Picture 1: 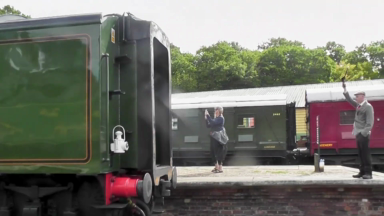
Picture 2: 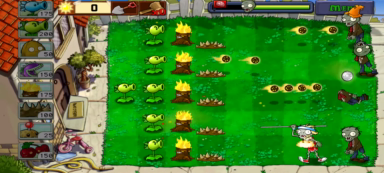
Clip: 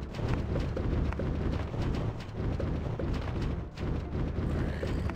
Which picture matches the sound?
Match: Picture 2